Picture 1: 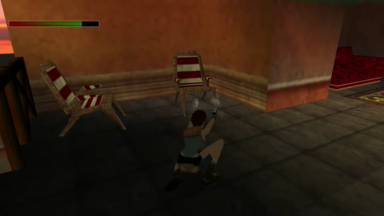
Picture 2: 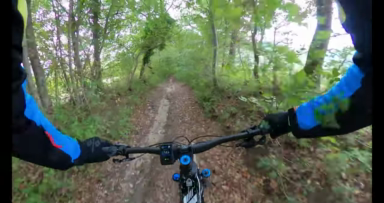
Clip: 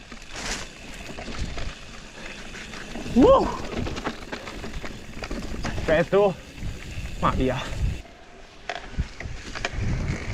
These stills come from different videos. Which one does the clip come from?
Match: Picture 2